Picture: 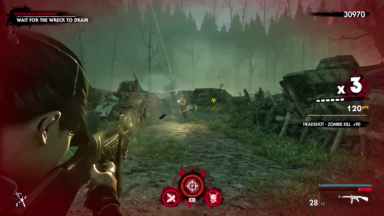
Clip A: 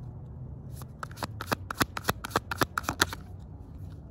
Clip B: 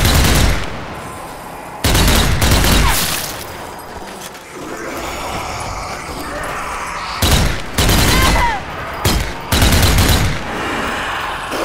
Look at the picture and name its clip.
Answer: B